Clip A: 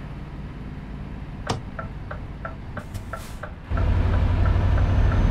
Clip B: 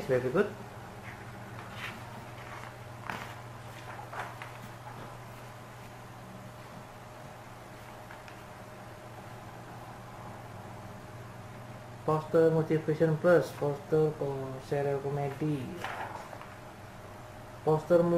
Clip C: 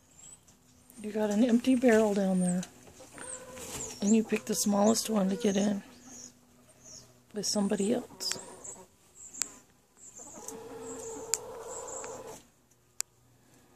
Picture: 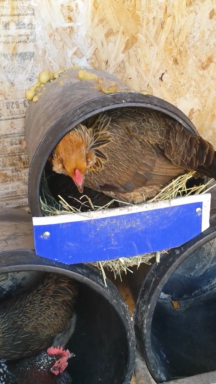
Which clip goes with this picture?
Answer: C